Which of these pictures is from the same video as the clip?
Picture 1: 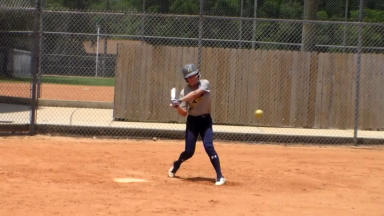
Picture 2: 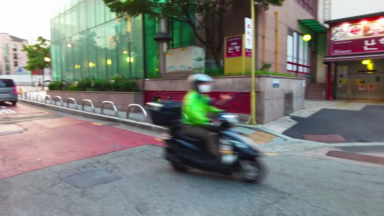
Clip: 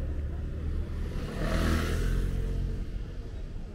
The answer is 2